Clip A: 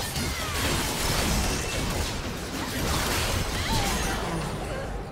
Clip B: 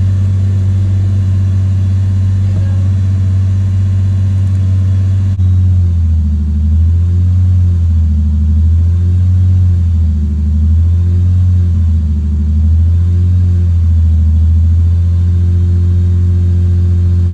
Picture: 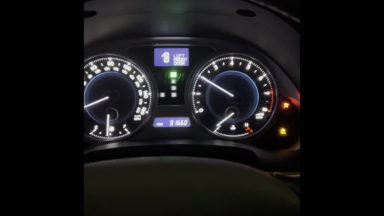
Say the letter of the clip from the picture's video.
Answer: B